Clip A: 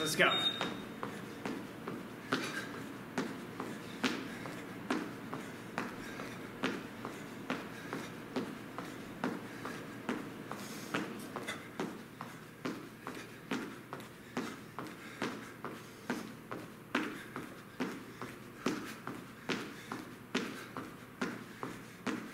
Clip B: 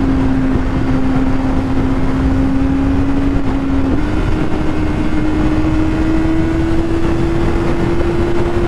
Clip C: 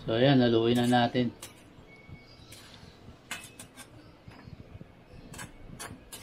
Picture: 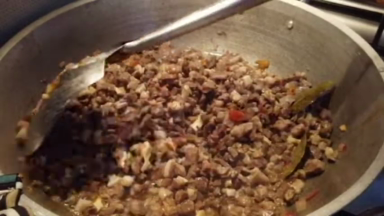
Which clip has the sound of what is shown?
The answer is C